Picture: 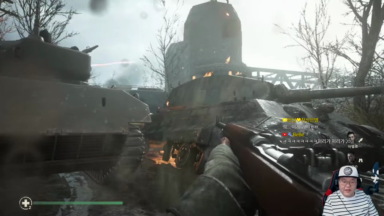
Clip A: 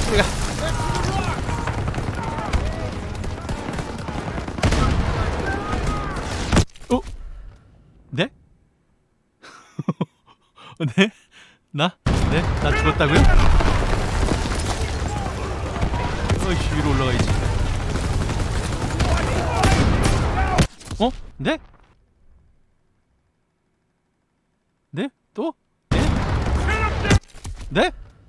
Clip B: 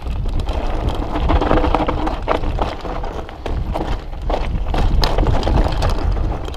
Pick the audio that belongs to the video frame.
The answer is A